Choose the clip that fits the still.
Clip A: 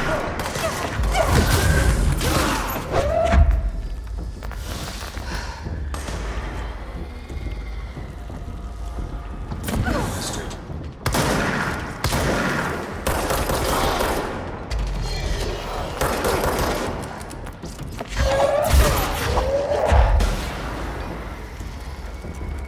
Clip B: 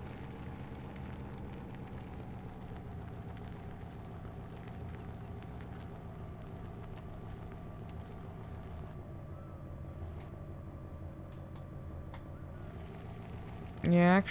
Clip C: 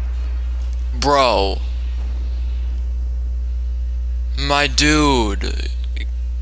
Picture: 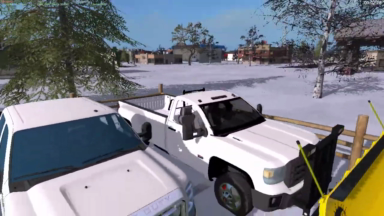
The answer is B